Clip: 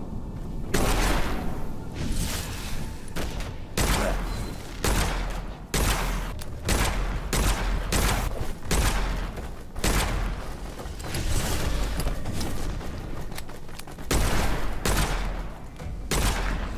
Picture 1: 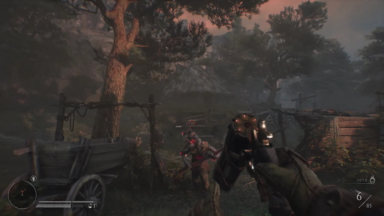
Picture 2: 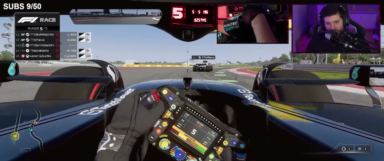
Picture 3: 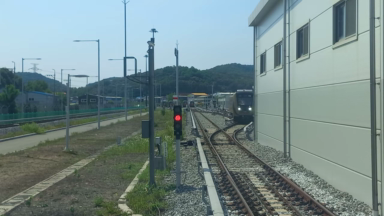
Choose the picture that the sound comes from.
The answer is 1